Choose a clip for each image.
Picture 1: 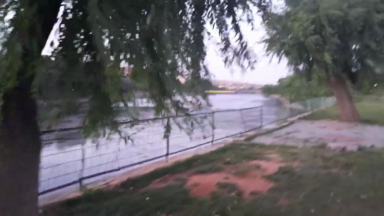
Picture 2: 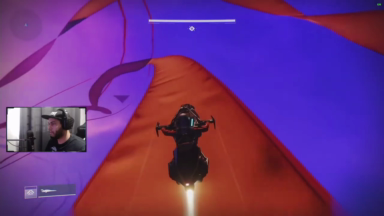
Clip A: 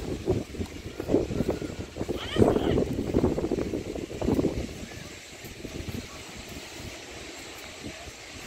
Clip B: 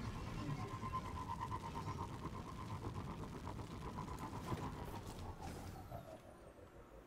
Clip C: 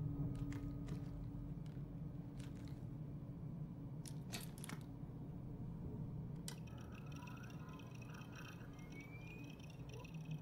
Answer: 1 A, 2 B